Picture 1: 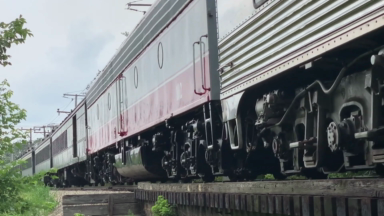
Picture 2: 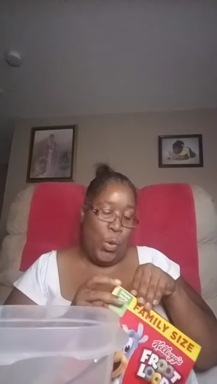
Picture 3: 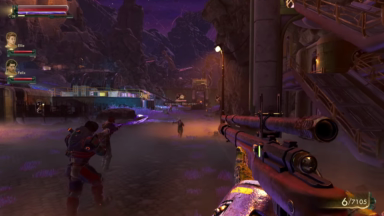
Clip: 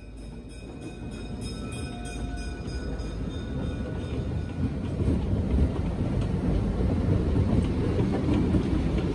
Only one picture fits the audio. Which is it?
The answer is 1